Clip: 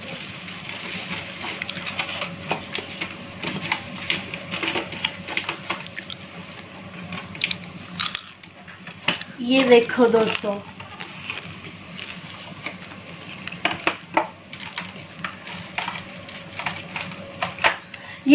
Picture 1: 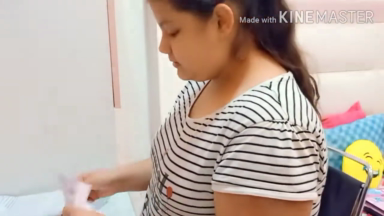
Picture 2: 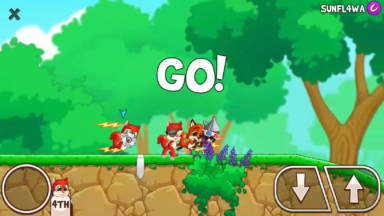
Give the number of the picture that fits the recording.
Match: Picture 1